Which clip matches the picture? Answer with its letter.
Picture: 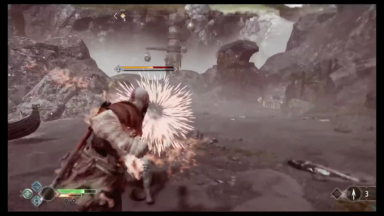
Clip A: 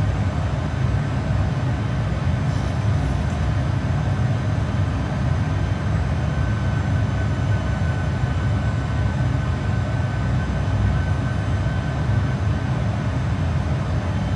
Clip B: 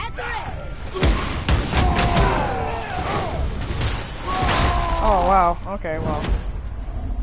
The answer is B